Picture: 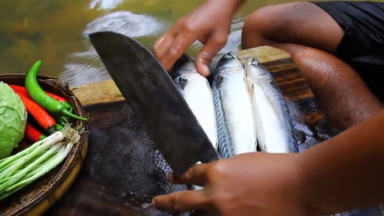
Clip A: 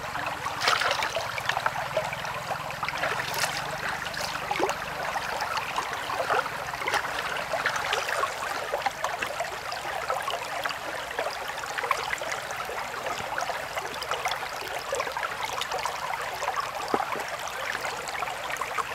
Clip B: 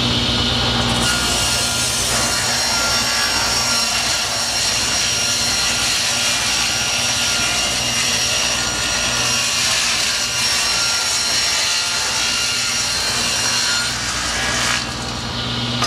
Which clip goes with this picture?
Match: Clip A